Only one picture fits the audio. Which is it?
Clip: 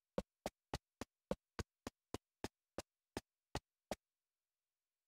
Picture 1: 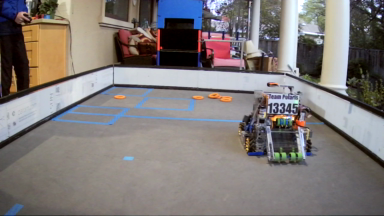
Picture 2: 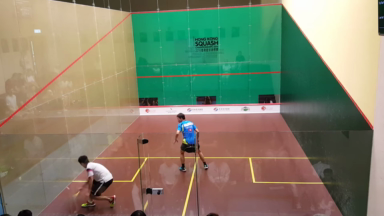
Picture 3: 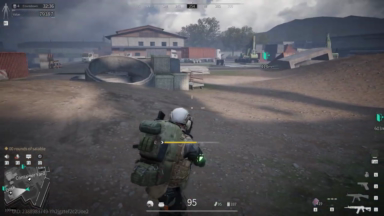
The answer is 3